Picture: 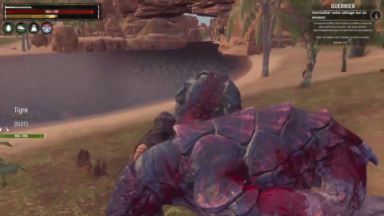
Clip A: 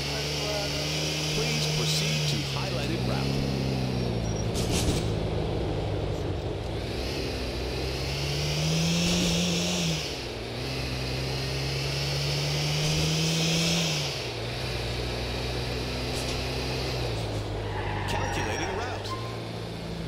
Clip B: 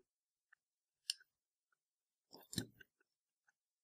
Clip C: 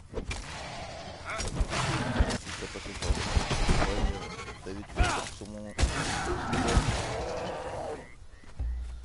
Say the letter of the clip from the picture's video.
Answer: C